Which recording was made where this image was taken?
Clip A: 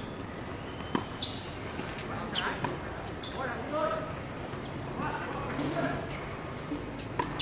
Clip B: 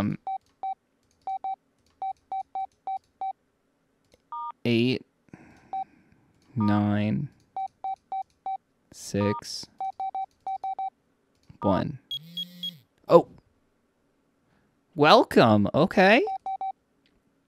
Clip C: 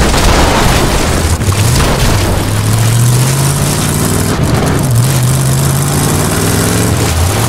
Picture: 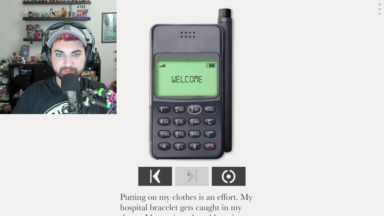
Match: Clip B